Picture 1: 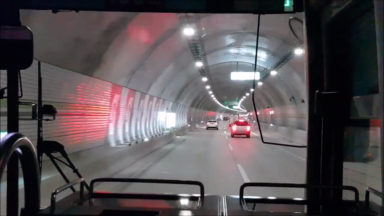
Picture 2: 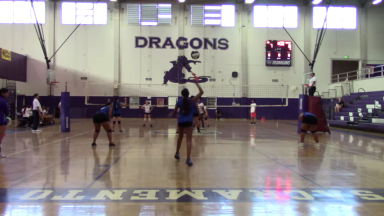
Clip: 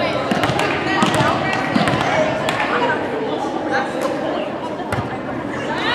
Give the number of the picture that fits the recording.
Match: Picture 2